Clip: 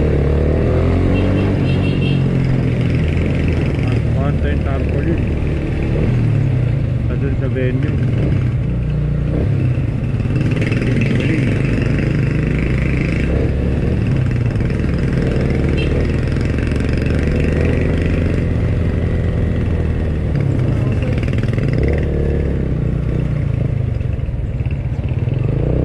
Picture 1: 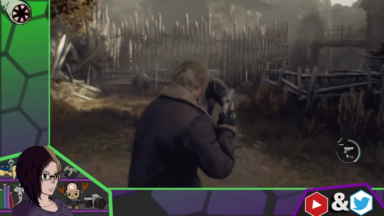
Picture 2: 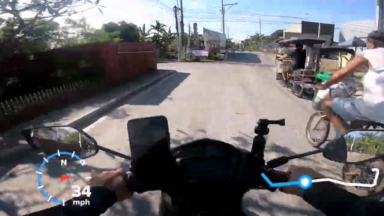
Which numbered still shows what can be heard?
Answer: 2